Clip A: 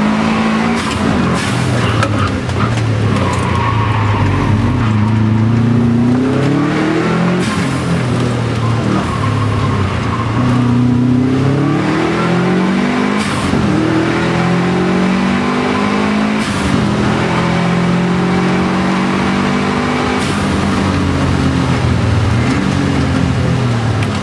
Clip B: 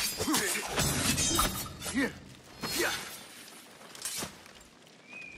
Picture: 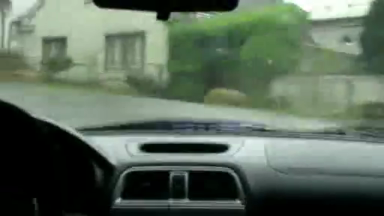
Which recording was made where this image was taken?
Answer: A